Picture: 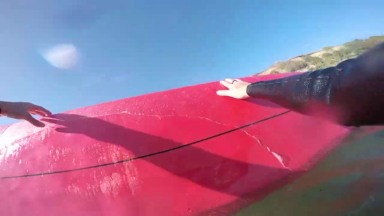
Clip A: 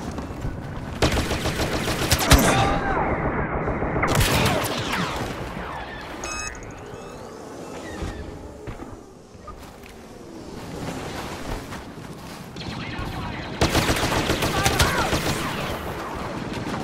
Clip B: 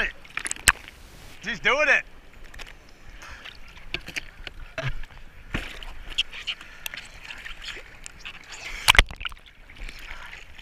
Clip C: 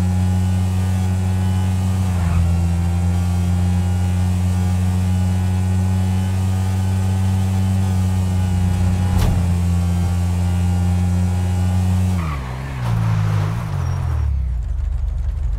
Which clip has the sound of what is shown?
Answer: B